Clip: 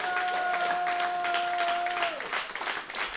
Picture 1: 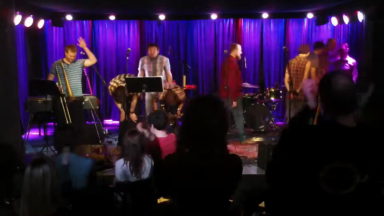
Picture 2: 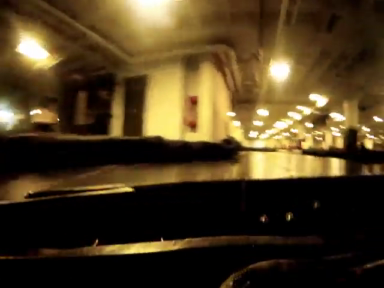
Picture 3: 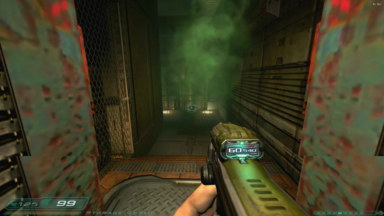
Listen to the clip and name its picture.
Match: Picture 1